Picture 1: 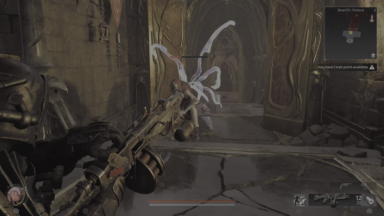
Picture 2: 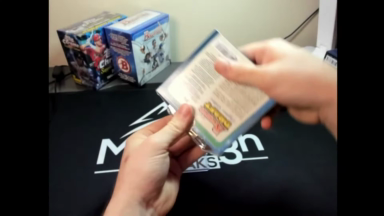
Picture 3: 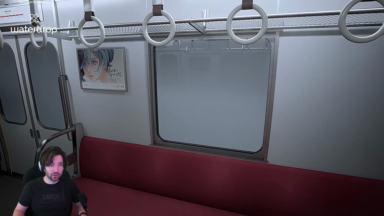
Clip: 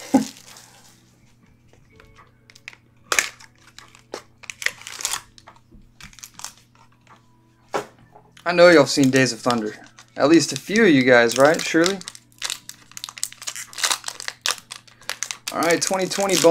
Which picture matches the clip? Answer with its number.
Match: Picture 2